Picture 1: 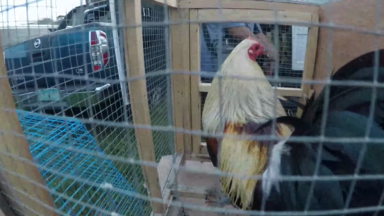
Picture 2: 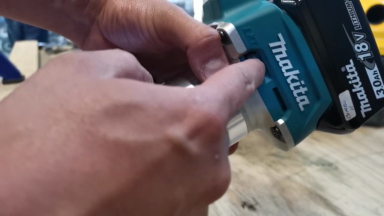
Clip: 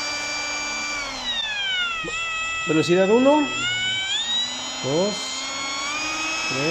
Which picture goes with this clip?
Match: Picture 2